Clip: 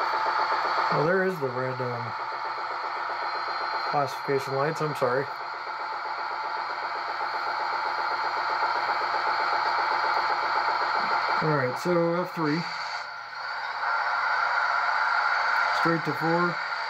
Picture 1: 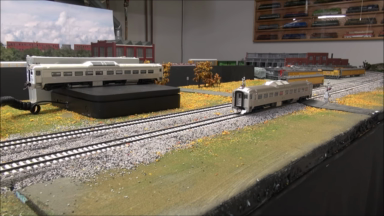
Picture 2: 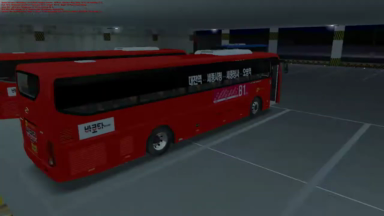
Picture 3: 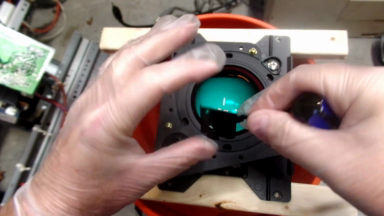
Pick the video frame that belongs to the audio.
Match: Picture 1